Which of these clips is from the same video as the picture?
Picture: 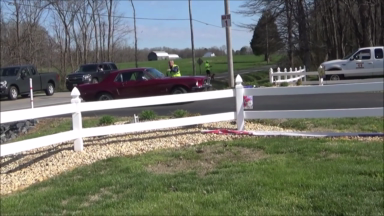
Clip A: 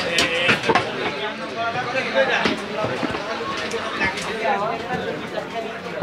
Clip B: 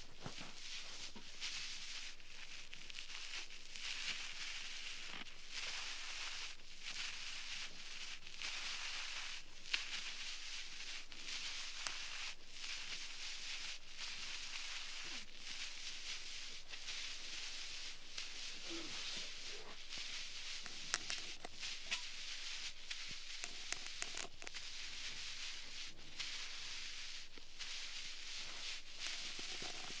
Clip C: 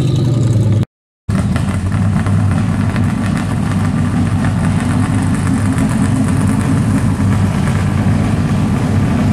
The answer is C